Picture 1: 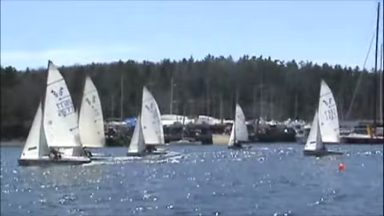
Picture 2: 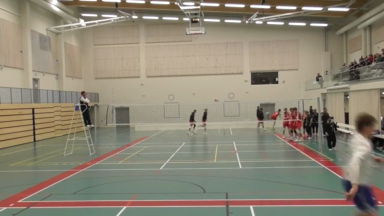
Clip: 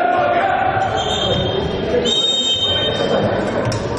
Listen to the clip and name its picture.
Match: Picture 2